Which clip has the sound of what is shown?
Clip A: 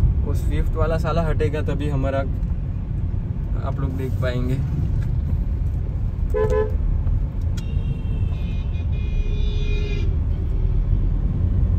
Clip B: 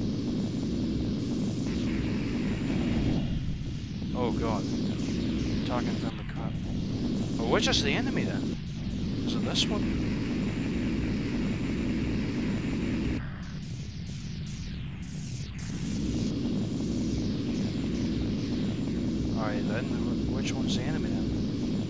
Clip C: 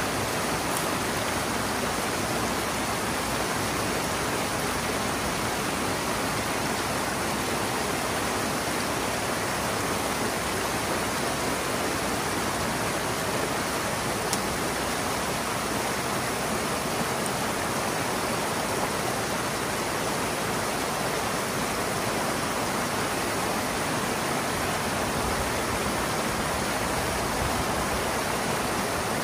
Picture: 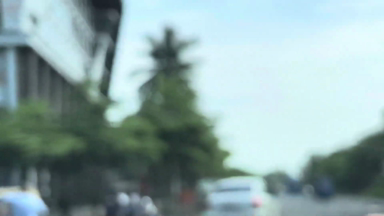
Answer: A